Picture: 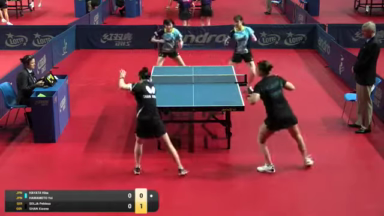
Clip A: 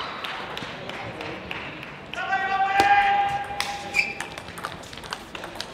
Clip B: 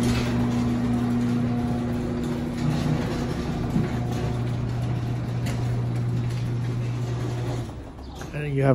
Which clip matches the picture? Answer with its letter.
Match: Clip A